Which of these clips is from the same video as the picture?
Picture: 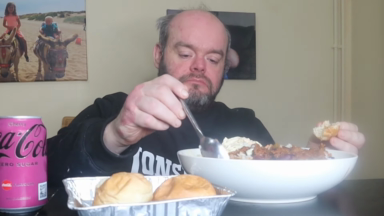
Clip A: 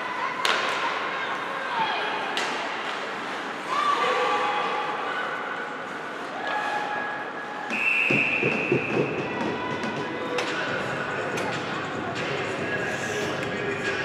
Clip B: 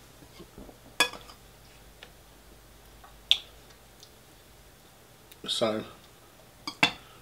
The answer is B